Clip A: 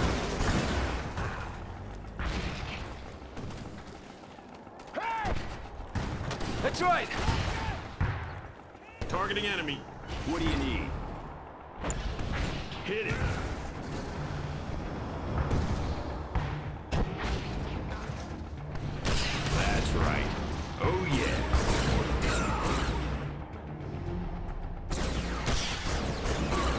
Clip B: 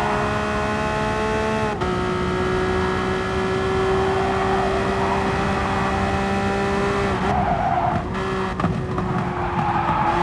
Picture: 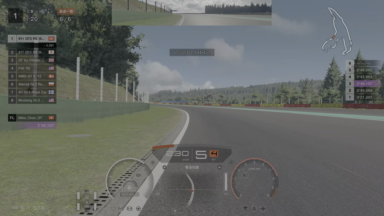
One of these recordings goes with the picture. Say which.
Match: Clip B